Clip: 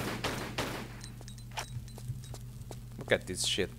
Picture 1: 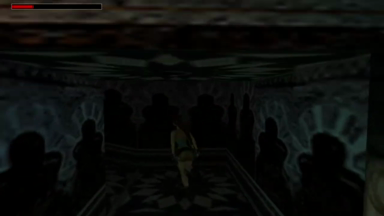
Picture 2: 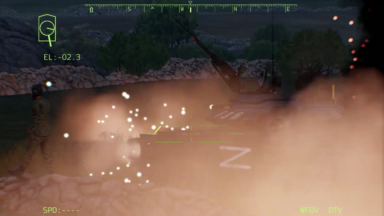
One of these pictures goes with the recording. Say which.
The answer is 1